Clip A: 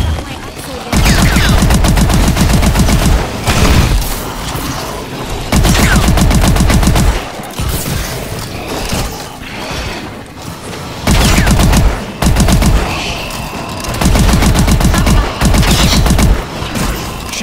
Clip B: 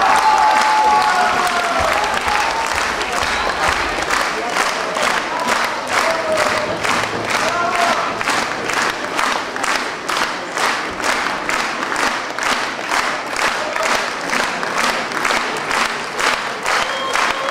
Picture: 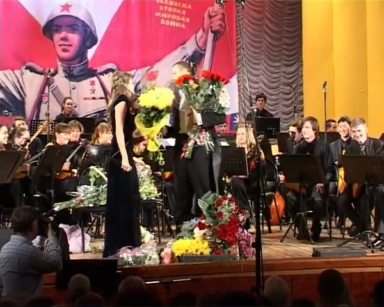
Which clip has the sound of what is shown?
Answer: B